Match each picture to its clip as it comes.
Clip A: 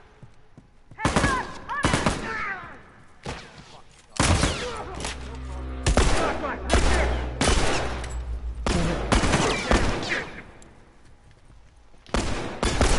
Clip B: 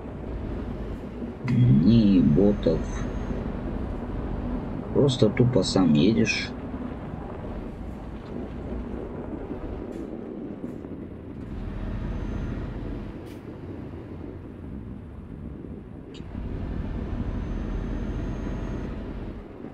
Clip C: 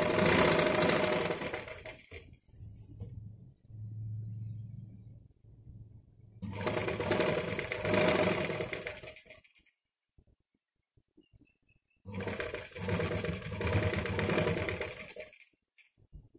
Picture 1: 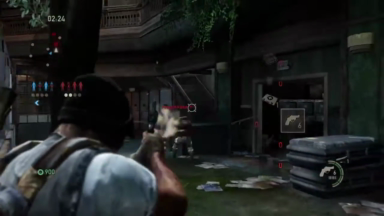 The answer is A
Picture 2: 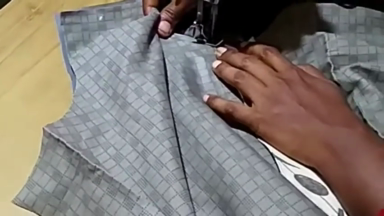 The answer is C